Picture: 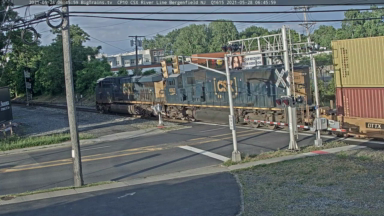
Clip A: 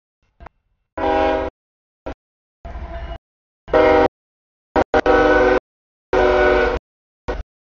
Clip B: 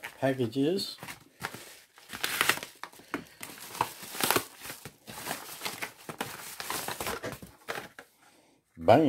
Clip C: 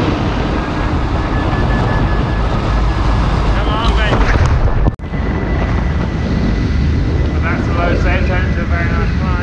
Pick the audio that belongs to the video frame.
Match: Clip A